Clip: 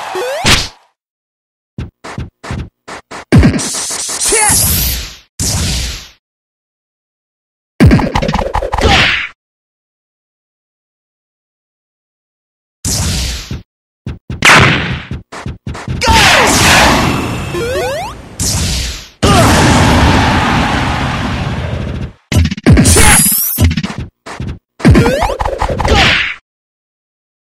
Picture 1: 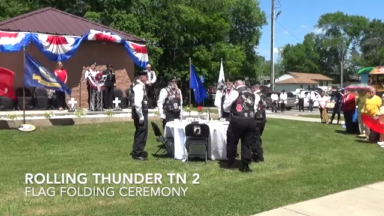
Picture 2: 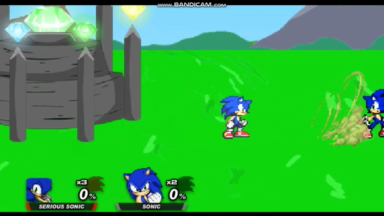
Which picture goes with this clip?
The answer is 2